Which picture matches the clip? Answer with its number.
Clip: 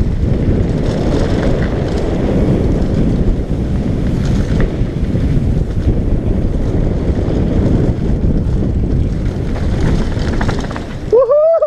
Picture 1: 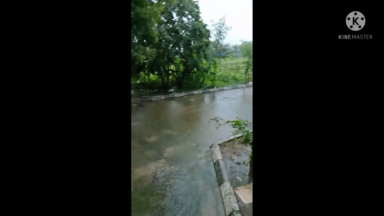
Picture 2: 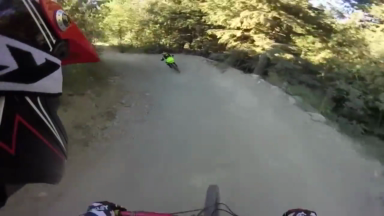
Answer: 2